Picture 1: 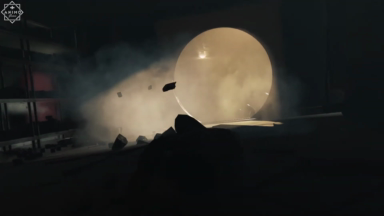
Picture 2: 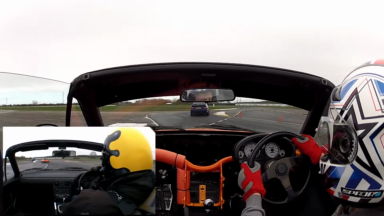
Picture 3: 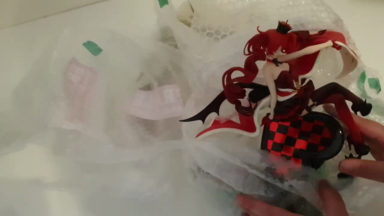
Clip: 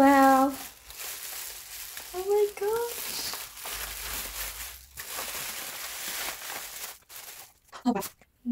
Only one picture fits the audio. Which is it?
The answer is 3